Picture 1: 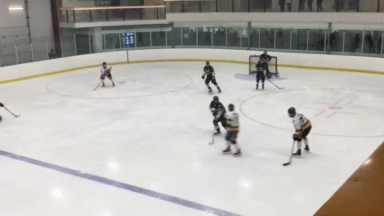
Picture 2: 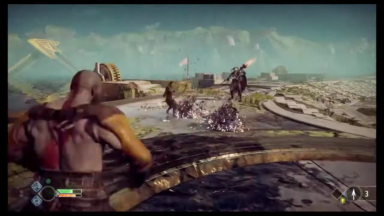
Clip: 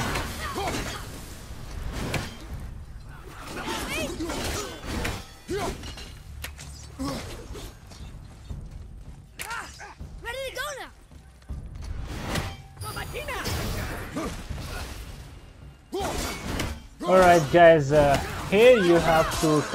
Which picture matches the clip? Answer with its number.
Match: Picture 2